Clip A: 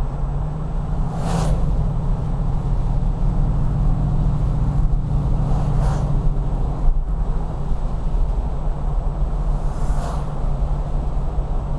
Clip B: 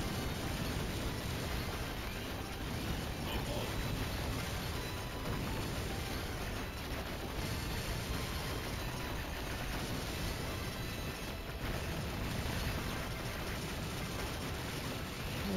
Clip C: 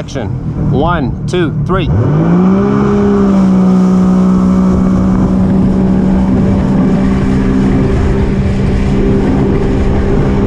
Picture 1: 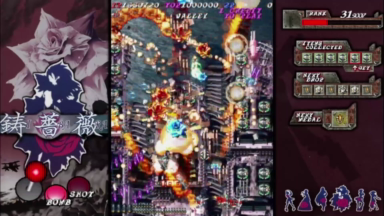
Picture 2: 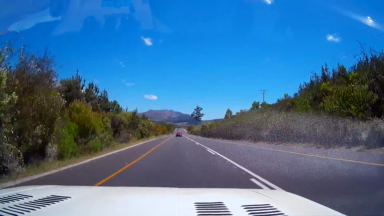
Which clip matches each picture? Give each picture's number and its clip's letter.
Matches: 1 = B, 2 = A